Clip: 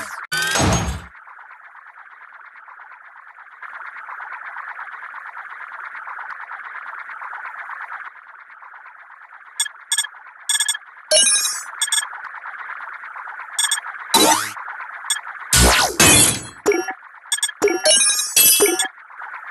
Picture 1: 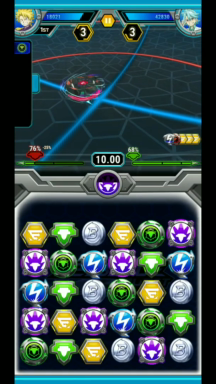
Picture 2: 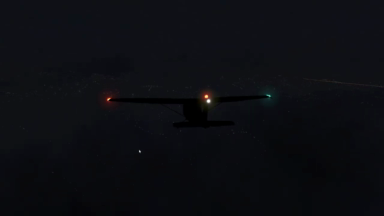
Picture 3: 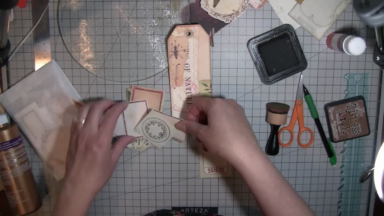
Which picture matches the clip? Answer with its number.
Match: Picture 1